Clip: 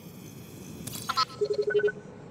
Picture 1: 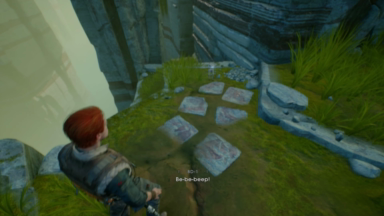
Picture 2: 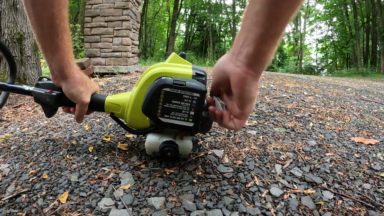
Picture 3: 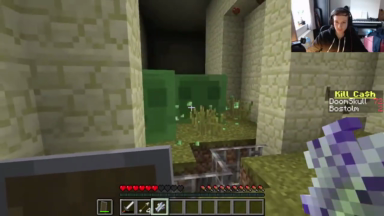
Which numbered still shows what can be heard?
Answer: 1